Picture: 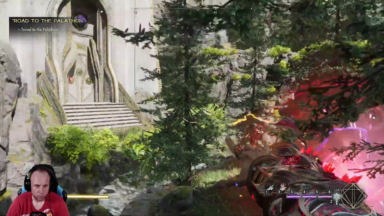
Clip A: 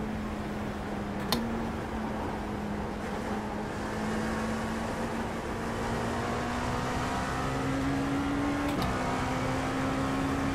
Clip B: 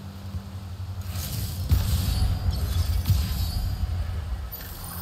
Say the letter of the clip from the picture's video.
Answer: B